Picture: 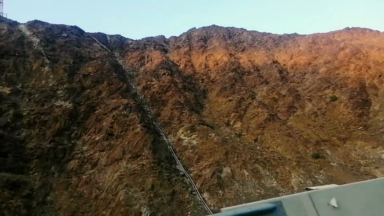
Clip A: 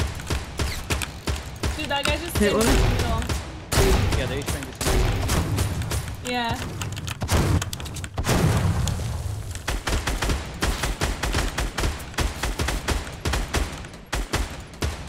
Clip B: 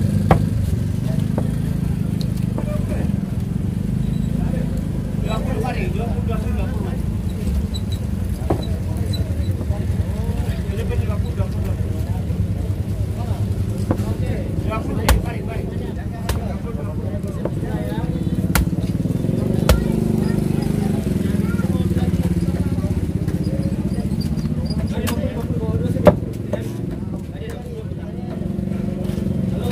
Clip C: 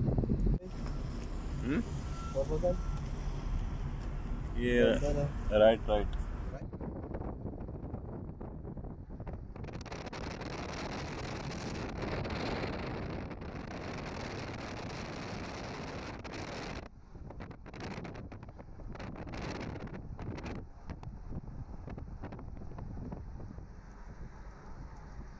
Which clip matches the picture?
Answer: C